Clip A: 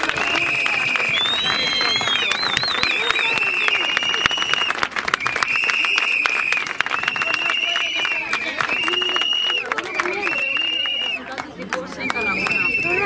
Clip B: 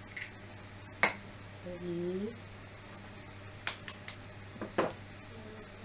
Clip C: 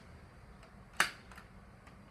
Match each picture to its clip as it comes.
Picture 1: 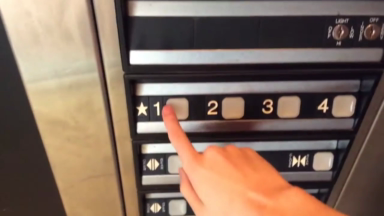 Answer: C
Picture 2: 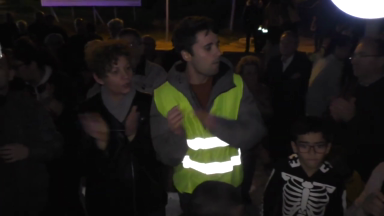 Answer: A